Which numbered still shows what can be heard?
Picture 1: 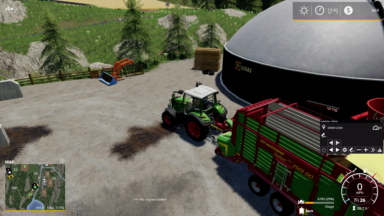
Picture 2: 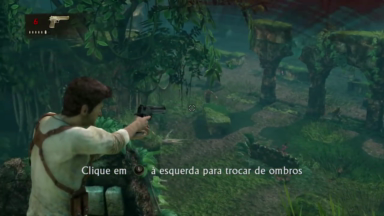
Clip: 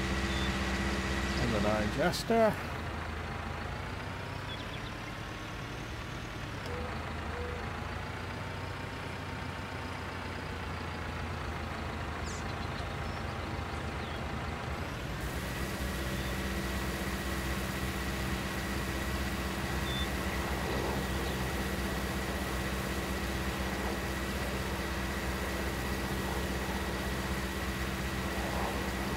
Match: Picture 1